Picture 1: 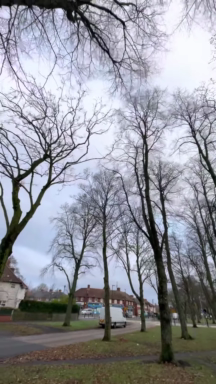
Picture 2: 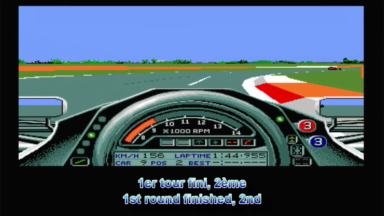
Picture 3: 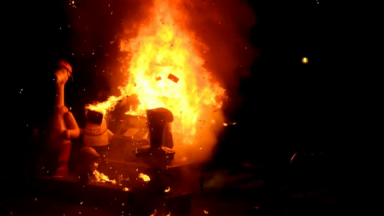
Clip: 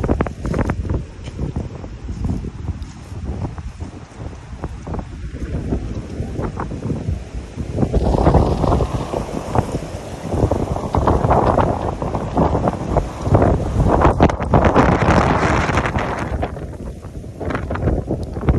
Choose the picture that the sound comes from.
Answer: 1